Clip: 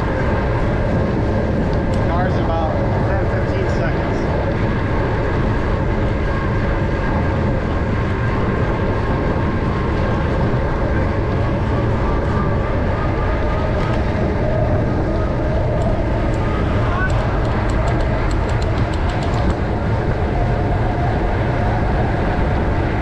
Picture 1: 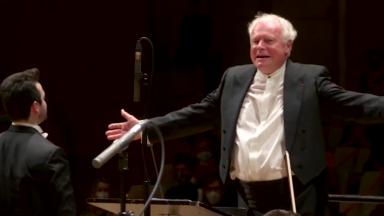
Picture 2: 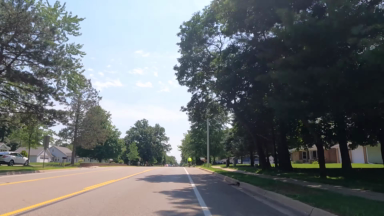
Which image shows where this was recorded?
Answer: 2